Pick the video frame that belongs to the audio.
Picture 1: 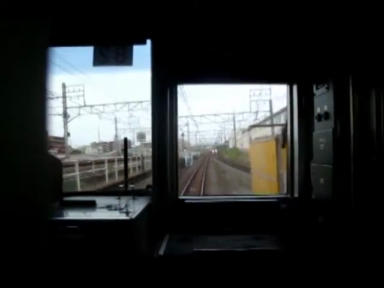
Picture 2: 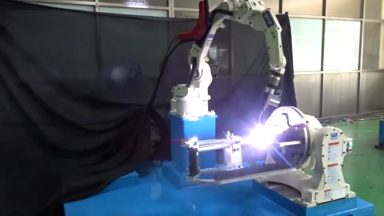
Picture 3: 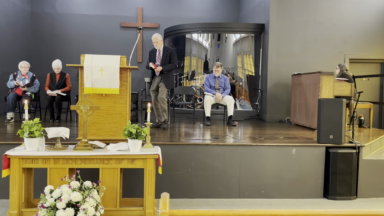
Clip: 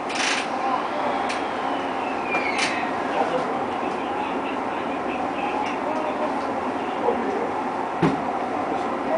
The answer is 1